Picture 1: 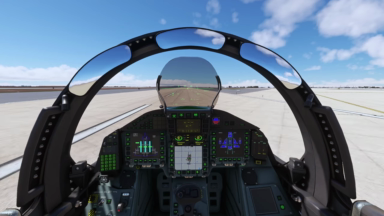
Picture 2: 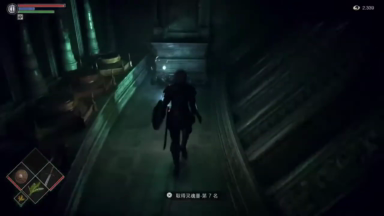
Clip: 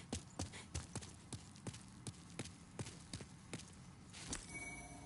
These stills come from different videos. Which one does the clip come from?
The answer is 2